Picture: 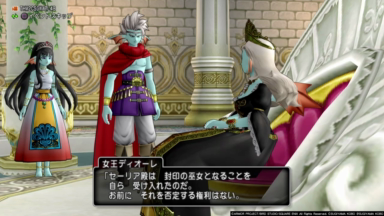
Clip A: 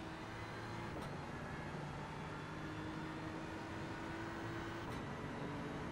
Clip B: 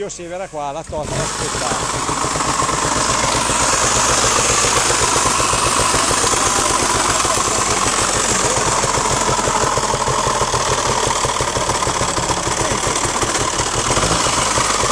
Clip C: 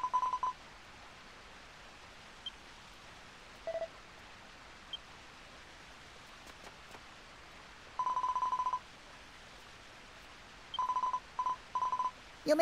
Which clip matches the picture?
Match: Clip C